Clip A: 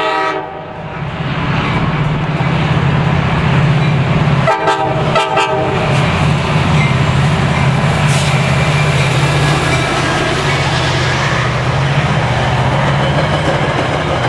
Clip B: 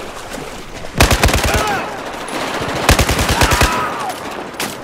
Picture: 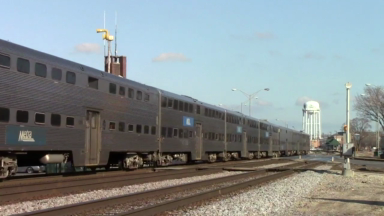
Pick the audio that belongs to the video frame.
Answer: A